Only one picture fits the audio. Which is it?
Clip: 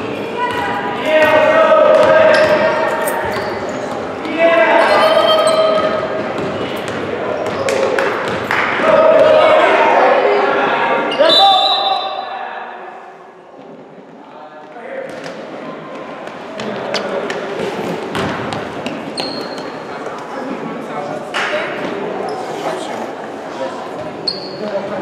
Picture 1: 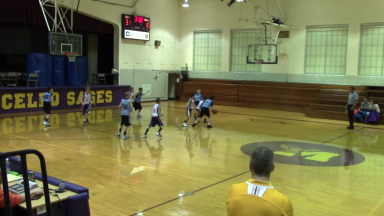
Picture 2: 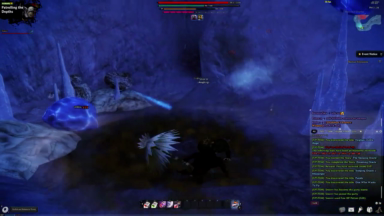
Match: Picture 1